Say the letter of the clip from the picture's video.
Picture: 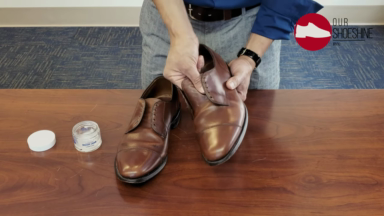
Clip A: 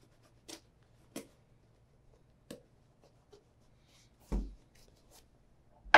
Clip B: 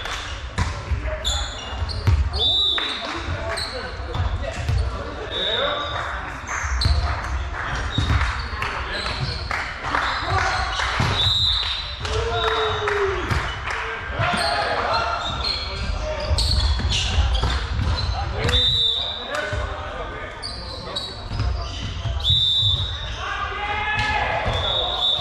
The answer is A